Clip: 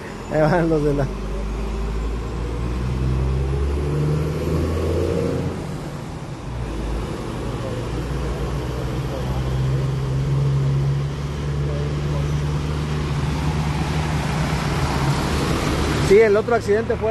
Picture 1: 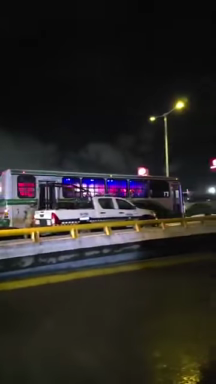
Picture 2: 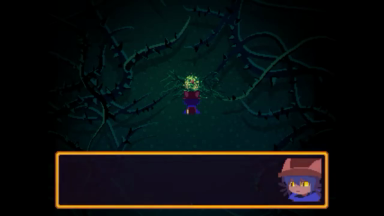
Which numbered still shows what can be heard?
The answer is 1